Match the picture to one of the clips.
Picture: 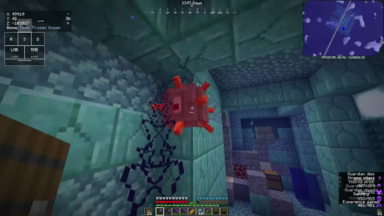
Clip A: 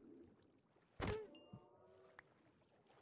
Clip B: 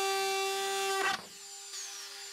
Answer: A